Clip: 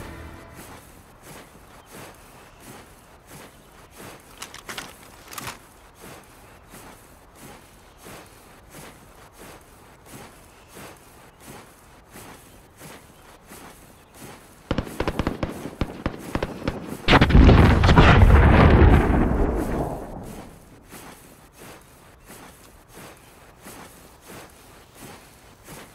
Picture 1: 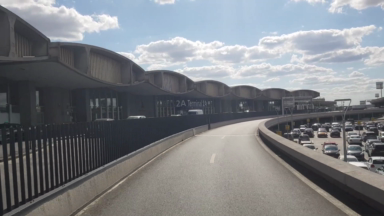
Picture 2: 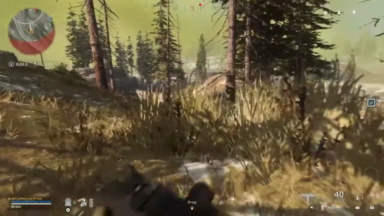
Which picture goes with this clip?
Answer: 2